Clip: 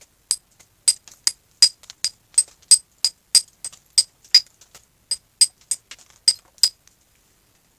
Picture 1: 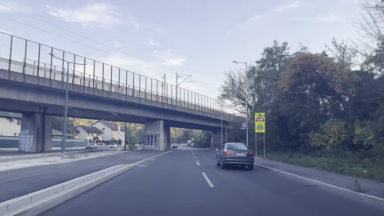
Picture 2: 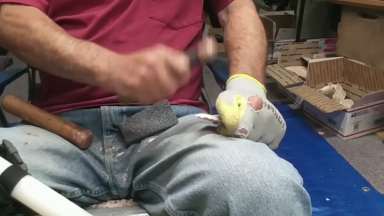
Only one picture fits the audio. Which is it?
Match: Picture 2